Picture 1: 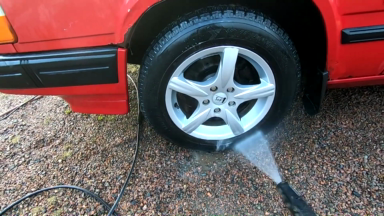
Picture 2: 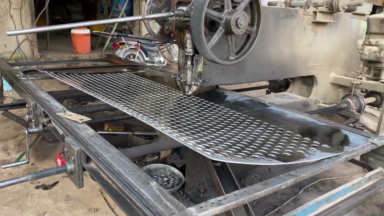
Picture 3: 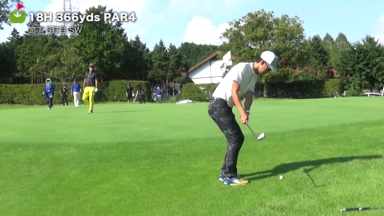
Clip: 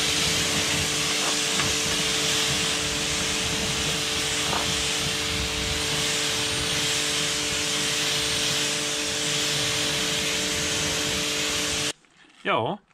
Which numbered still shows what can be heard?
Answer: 1